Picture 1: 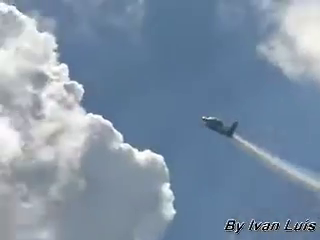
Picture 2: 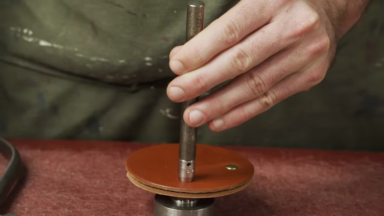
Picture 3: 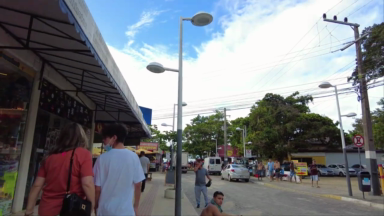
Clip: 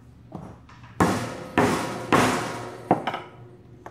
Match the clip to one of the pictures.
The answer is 2